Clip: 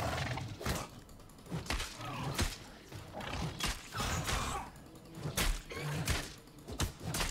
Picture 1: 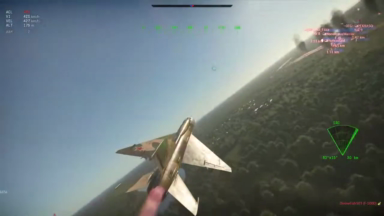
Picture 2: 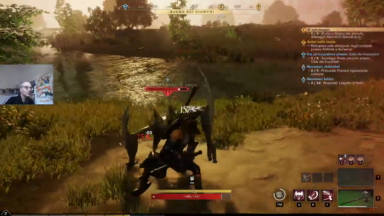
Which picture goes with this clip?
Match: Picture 2